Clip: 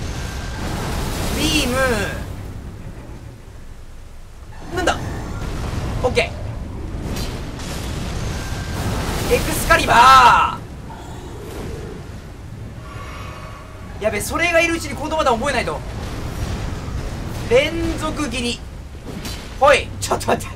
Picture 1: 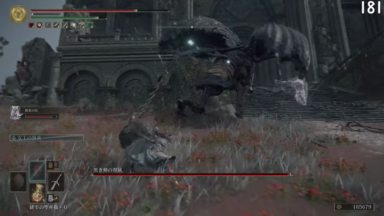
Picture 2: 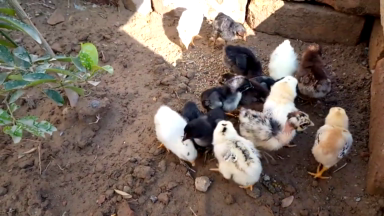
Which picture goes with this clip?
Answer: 1